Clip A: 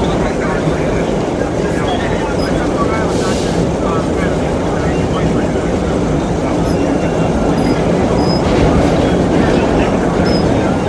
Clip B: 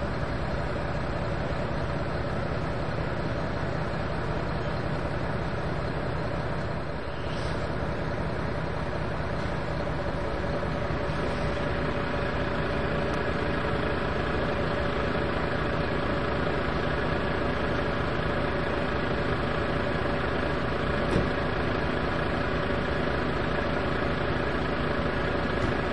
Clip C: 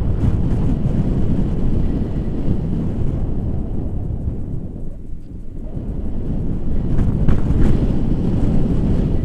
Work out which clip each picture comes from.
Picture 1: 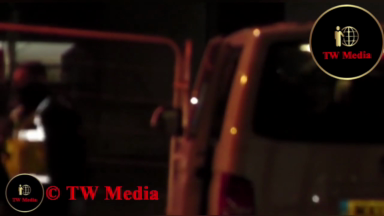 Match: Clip B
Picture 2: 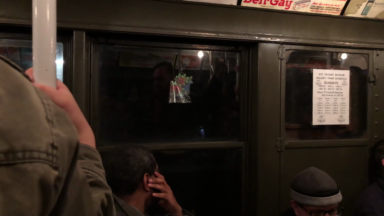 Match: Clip A